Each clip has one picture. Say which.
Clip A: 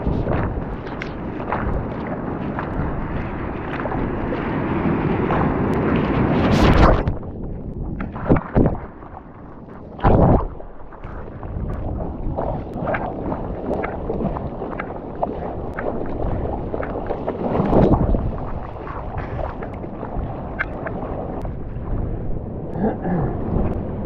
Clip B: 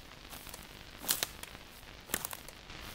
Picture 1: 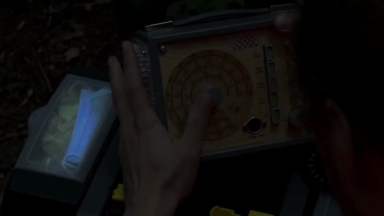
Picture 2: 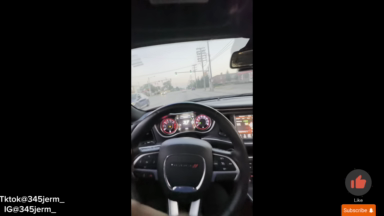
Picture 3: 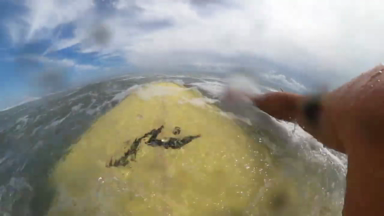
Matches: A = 3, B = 1